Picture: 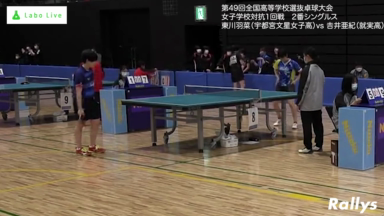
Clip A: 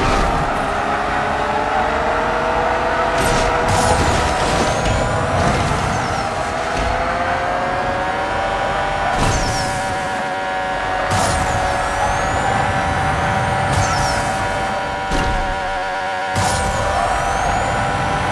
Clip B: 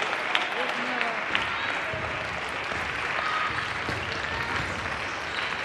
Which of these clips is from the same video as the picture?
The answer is B